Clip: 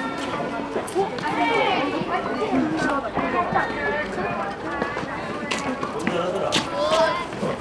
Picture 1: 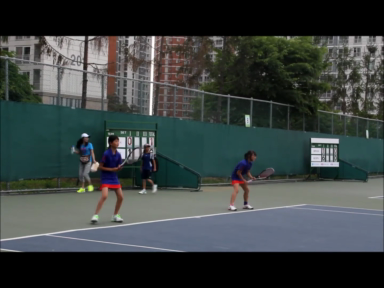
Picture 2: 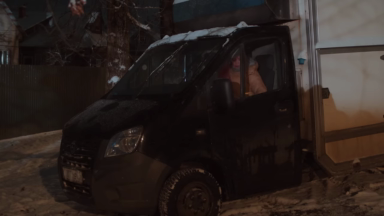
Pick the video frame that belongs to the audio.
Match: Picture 1